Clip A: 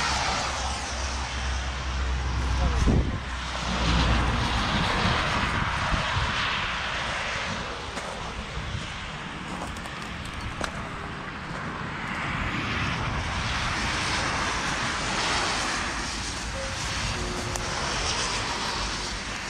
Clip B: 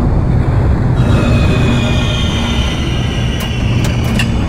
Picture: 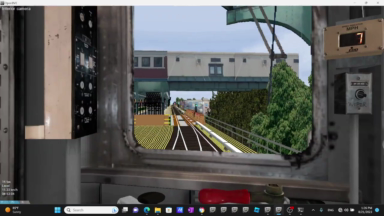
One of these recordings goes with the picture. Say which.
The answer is B